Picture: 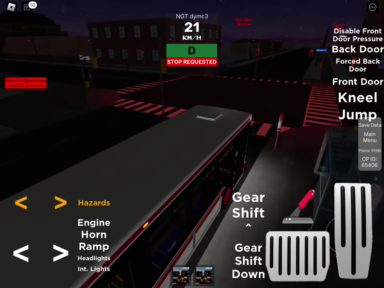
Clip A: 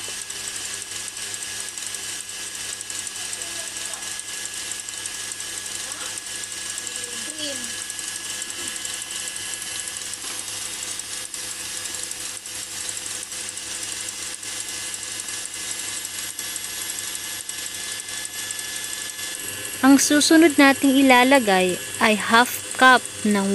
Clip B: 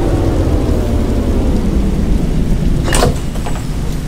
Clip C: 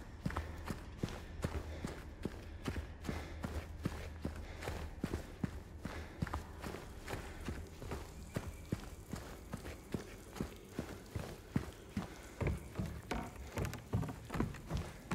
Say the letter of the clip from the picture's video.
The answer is B